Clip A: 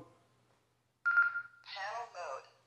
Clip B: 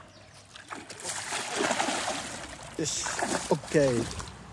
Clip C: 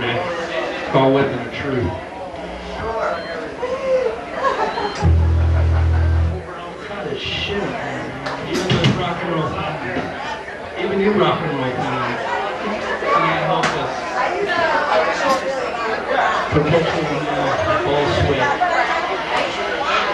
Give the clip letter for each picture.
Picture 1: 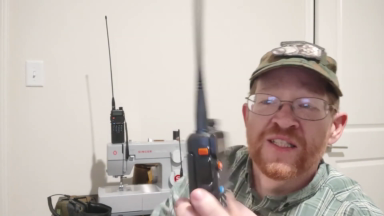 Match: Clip A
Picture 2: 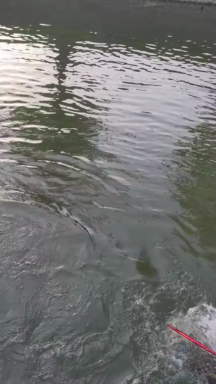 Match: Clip B